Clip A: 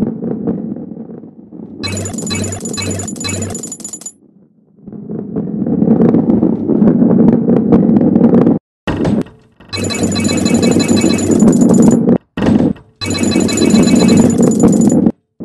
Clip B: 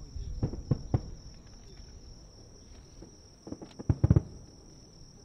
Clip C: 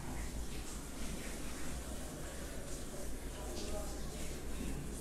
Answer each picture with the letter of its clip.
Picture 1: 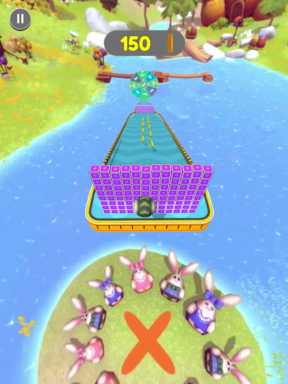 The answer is A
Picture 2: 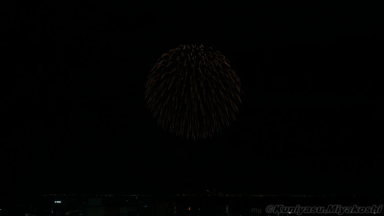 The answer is B